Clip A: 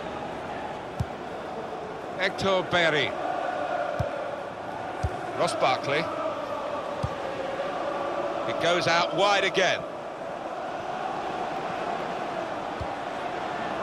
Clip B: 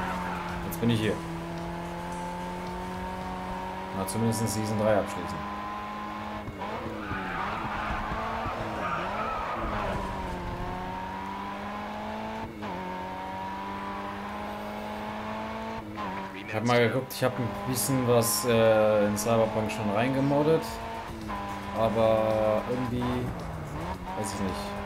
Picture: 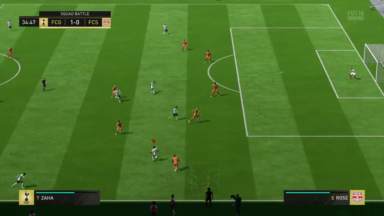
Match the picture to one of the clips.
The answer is A